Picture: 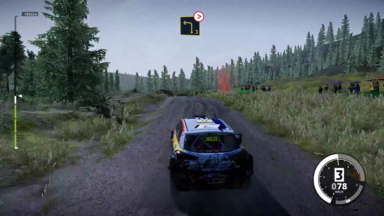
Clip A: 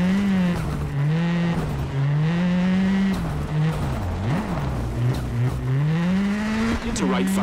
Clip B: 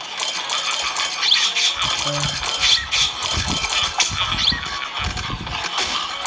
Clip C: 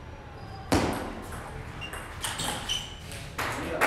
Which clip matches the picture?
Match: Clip A